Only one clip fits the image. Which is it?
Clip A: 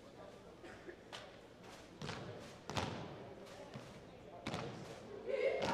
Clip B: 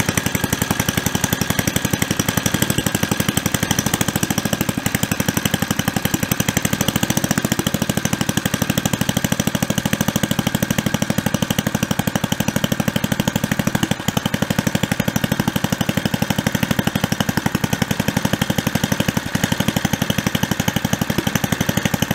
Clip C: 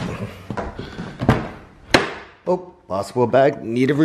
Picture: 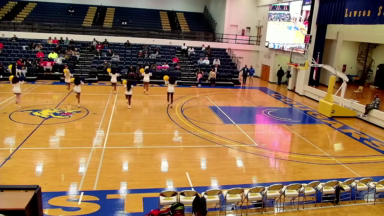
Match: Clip A